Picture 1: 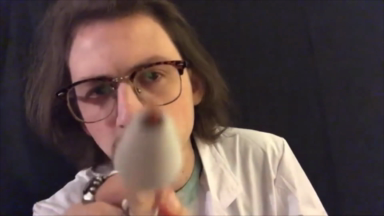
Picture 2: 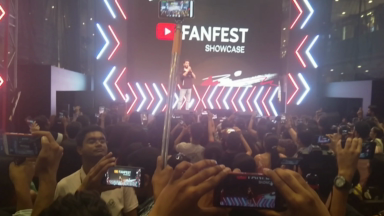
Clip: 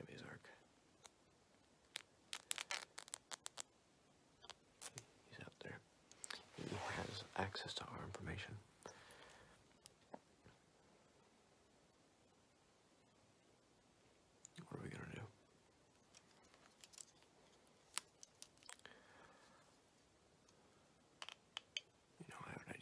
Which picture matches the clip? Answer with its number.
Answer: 1